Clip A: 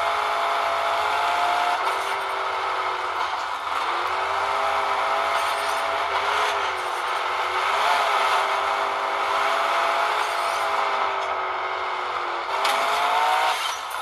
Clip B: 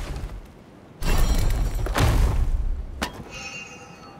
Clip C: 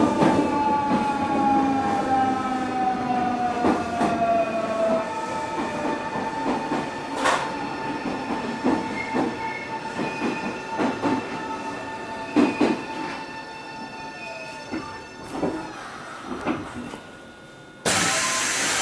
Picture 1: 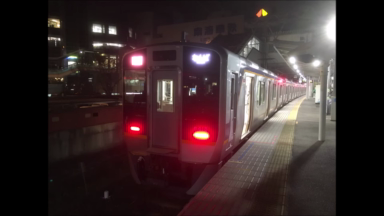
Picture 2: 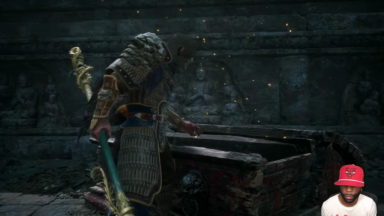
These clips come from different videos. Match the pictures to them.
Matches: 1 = C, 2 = B